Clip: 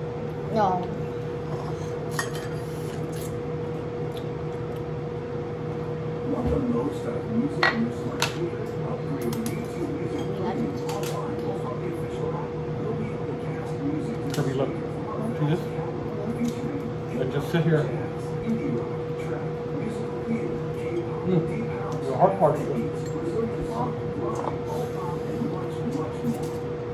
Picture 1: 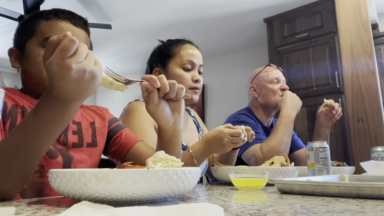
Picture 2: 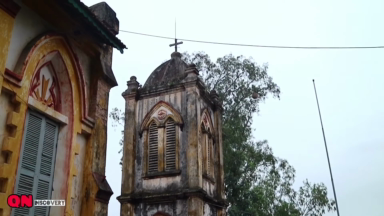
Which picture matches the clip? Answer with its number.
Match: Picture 1